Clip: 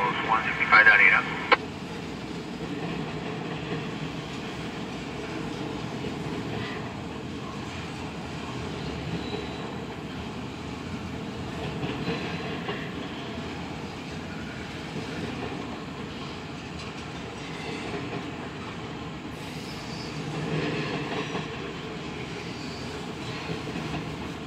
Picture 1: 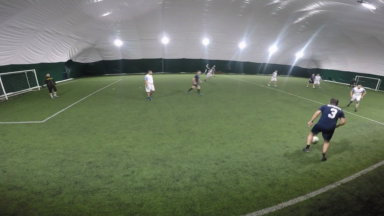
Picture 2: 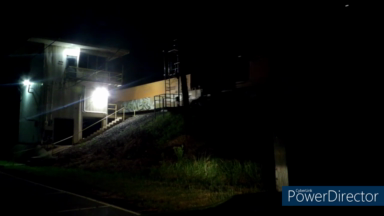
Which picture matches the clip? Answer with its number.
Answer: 2